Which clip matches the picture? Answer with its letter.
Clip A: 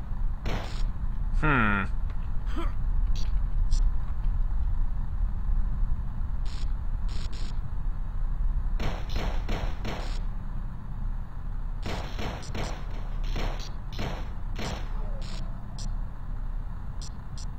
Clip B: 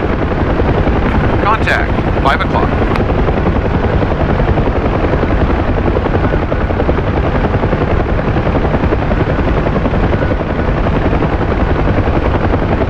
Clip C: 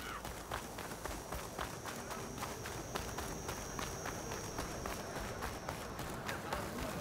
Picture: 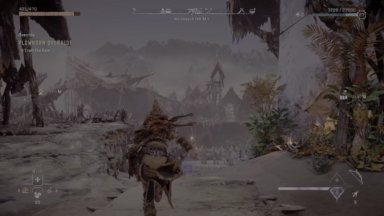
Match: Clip C